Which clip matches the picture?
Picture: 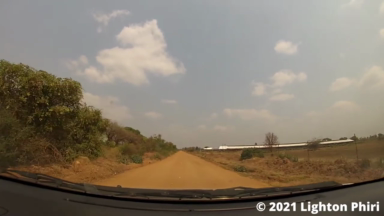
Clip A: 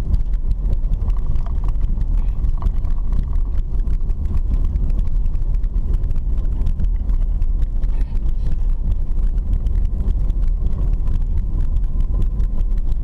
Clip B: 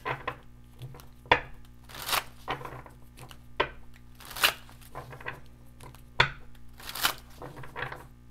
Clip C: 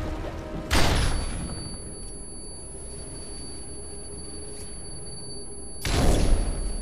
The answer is A